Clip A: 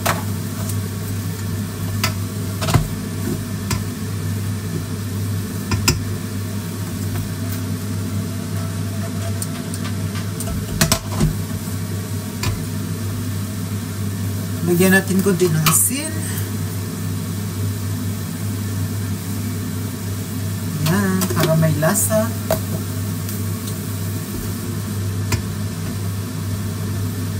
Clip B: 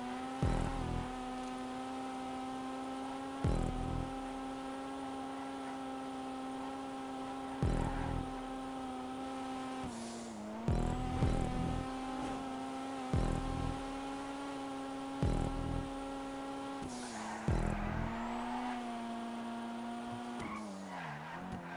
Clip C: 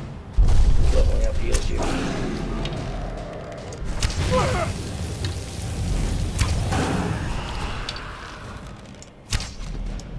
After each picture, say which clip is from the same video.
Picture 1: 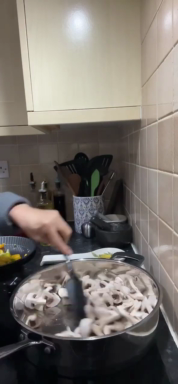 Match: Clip A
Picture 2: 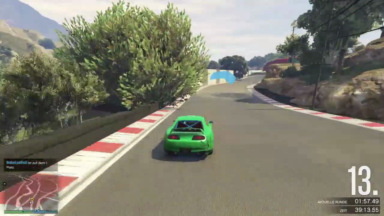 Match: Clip B